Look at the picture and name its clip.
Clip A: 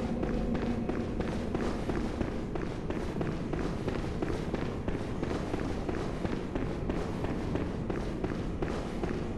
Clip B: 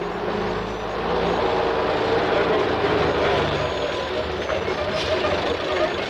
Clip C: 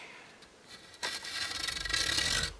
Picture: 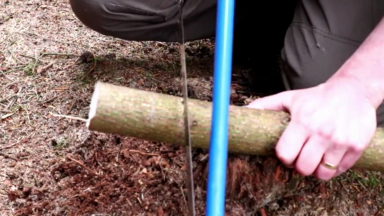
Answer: C